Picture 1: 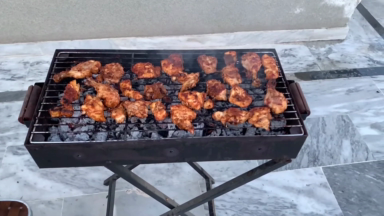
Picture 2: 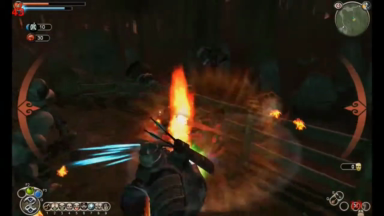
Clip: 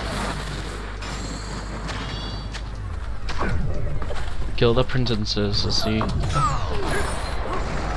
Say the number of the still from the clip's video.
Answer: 2